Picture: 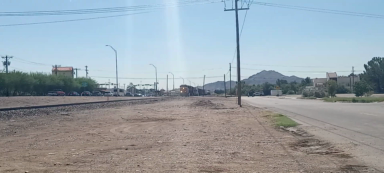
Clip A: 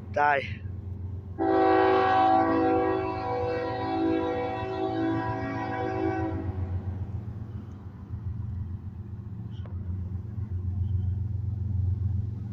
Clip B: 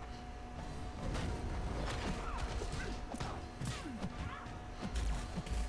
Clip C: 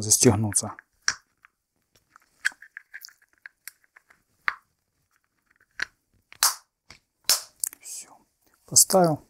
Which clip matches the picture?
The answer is A